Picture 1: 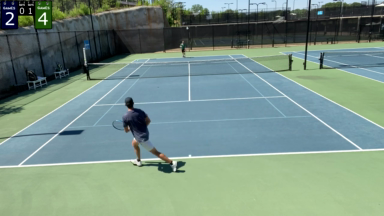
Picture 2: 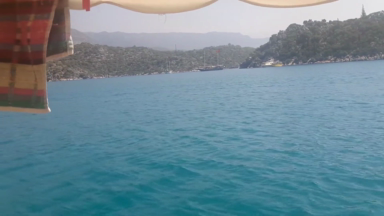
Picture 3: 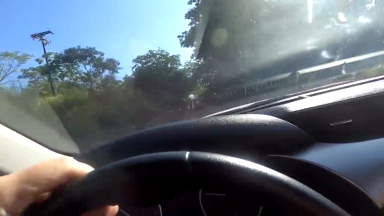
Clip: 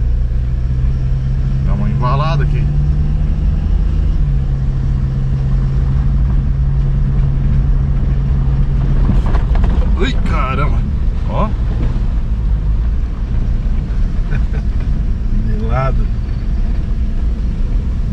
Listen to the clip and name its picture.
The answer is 3